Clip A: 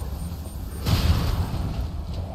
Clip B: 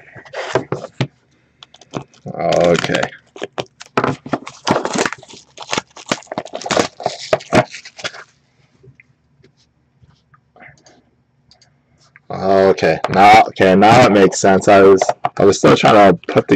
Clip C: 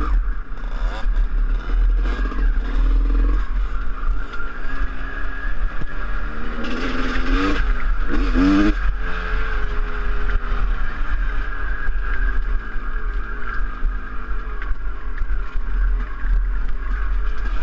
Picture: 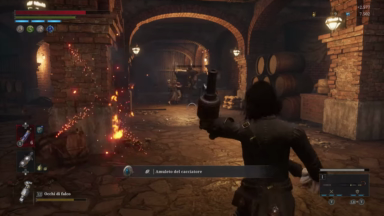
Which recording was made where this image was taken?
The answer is A